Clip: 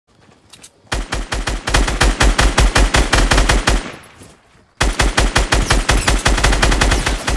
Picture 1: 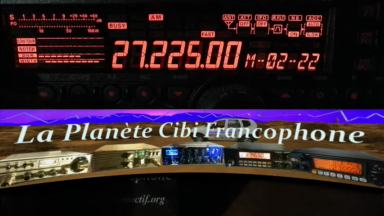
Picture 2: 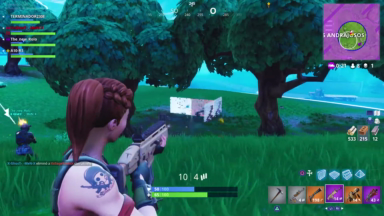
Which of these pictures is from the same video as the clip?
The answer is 2